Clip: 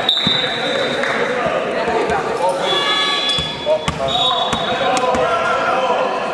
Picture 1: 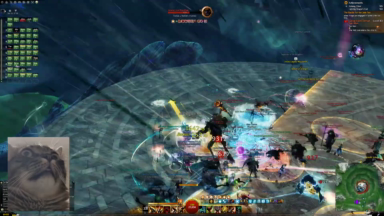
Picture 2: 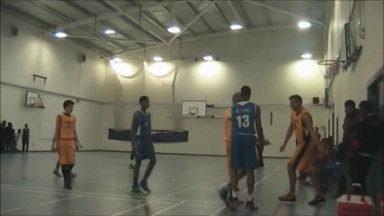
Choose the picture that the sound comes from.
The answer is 2